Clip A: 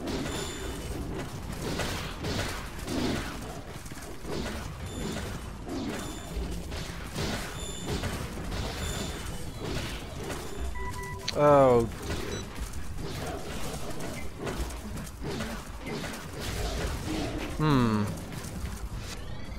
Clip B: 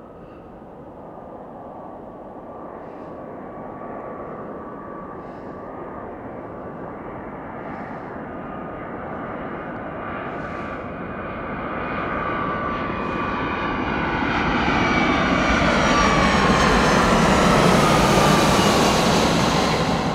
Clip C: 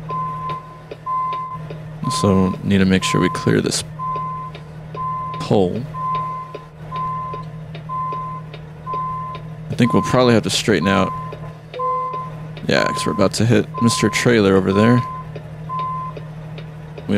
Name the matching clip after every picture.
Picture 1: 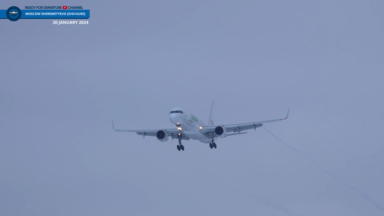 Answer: B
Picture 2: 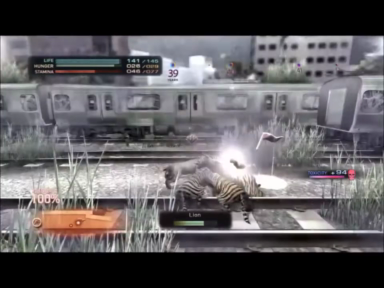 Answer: A